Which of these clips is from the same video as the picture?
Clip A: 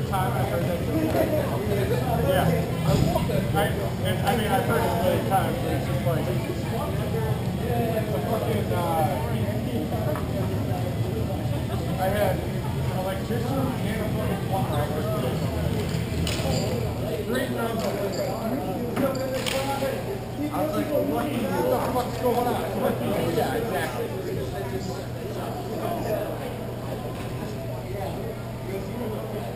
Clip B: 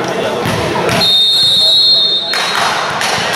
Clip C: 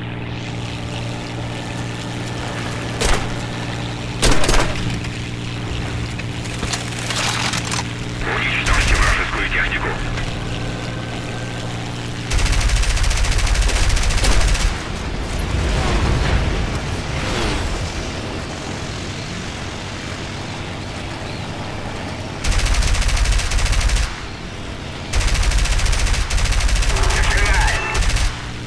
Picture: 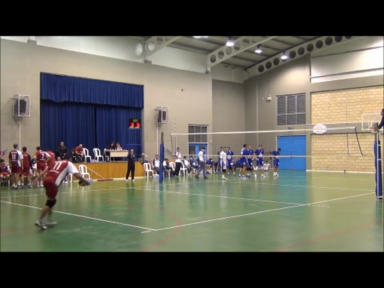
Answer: B